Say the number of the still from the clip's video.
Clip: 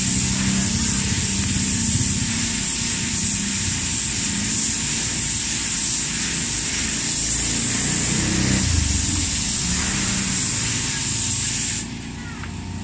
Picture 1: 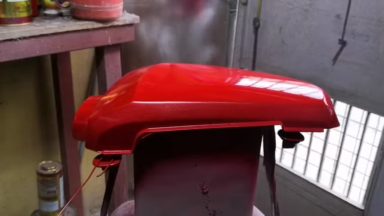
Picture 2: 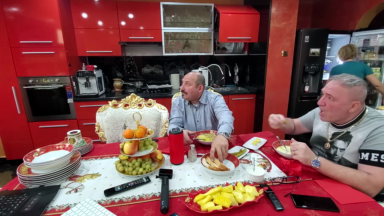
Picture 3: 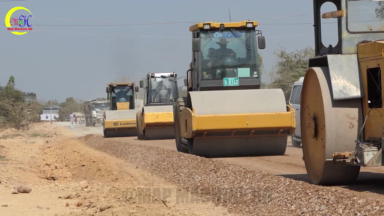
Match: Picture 1